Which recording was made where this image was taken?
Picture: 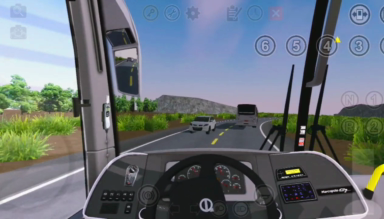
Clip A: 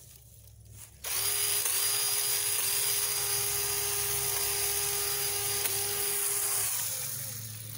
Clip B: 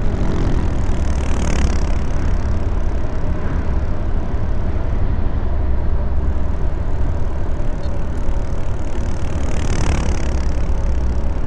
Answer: B